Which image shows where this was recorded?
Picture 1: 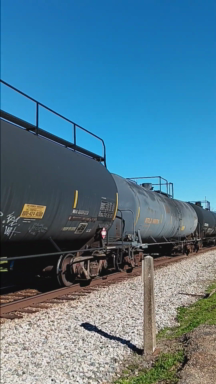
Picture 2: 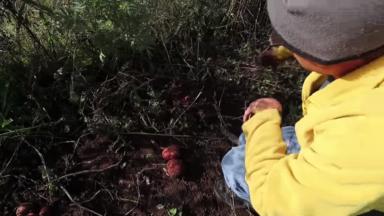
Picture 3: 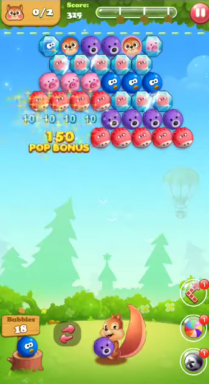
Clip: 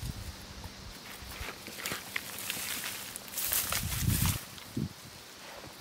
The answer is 2